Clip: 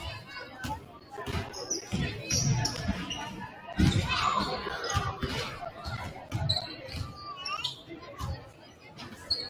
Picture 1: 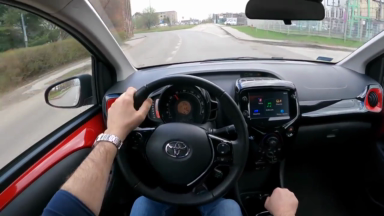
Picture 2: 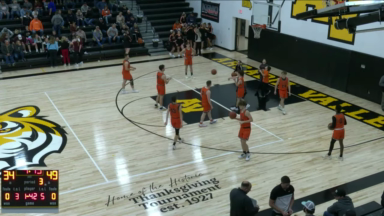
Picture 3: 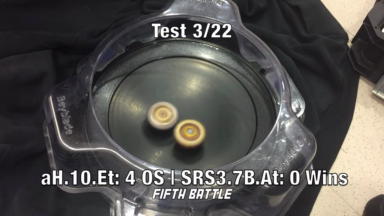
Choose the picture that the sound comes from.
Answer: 2